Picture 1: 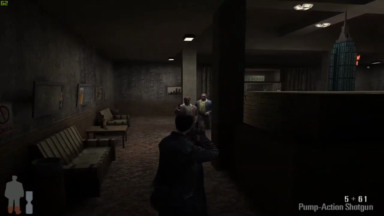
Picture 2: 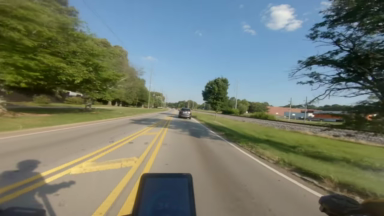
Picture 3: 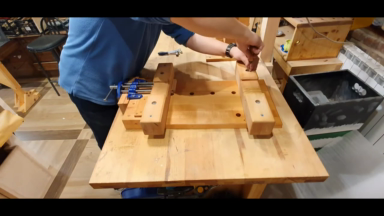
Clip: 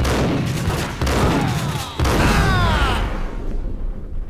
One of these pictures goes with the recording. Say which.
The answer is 1